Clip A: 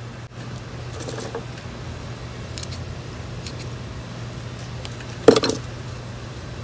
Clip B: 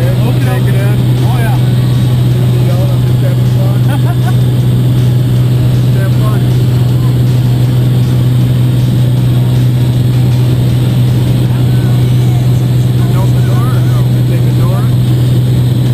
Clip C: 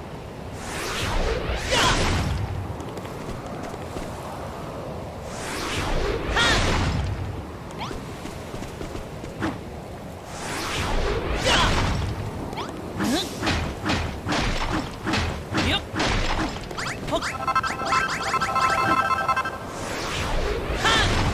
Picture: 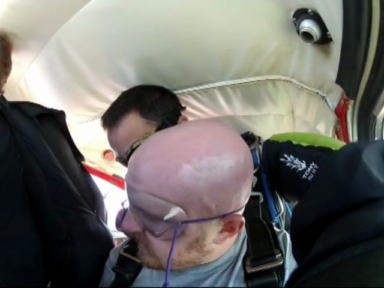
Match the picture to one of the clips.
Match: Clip B